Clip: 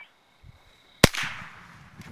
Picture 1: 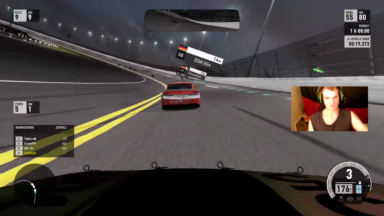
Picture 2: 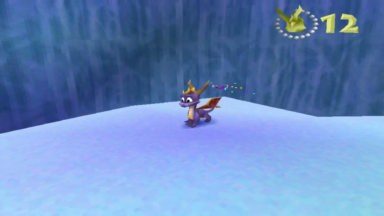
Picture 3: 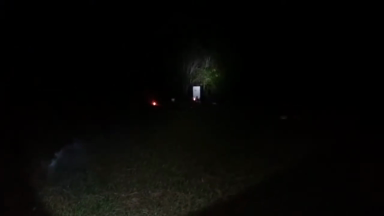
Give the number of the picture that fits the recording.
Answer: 3